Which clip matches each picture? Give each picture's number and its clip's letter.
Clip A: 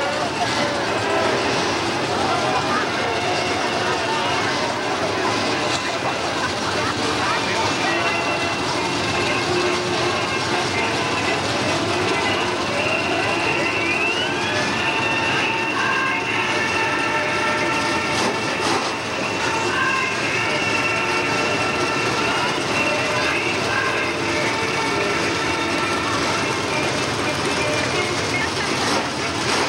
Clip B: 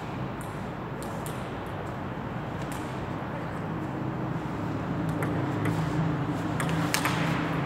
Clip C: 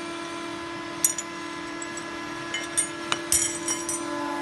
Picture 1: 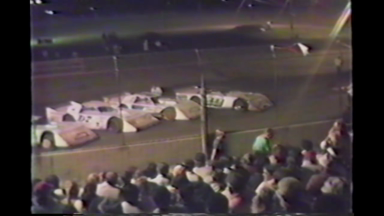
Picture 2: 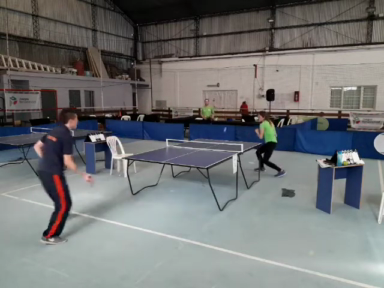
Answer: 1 A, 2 B